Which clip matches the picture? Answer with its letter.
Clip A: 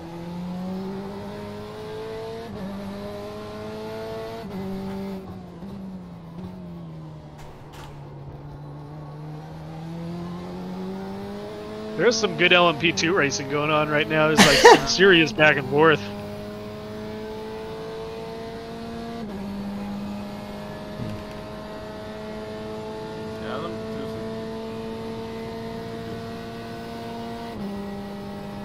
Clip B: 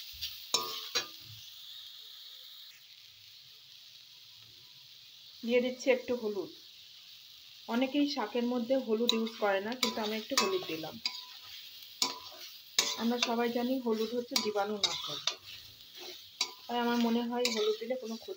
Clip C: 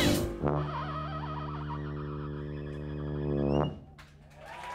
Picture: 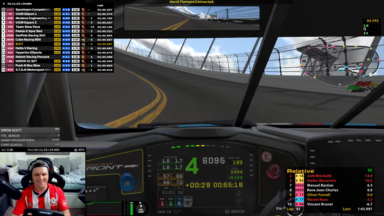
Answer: A